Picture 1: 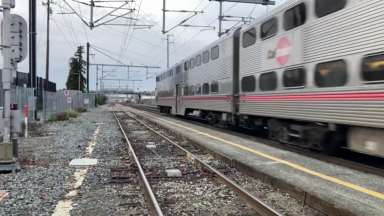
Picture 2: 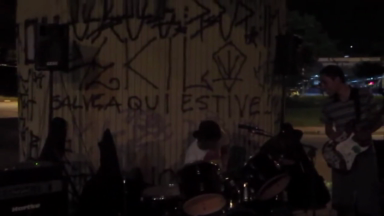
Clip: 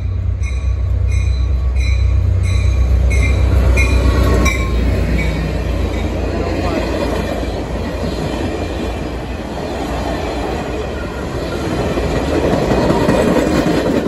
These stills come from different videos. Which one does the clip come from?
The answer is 1